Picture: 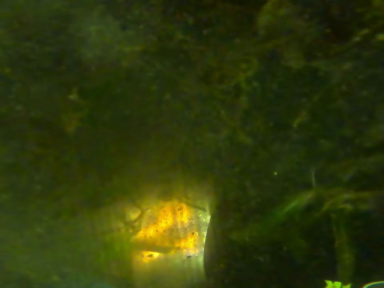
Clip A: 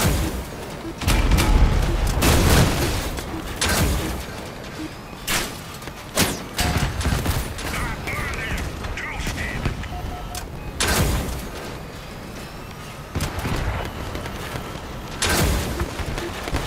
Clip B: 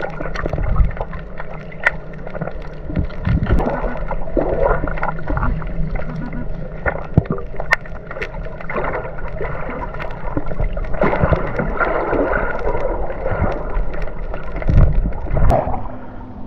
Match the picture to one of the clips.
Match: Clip B